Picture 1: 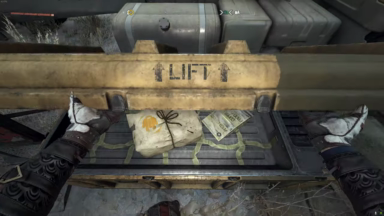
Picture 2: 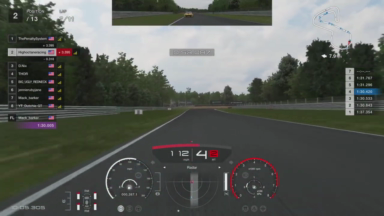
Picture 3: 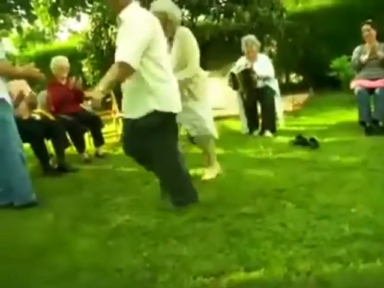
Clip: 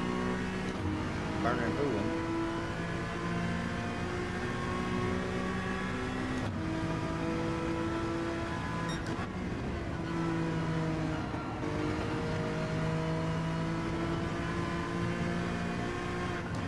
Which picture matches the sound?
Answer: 2